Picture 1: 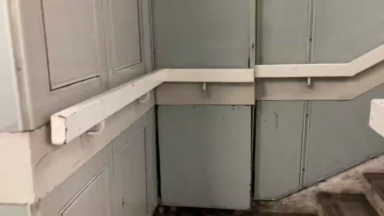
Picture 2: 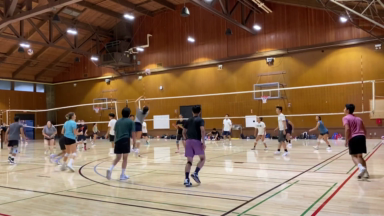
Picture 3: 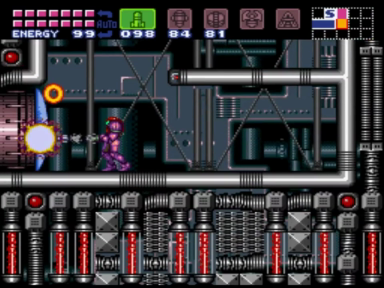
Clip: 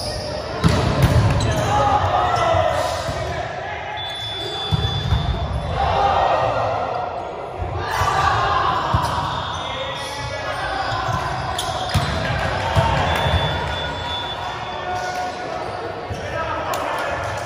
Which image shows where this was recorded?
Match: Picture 2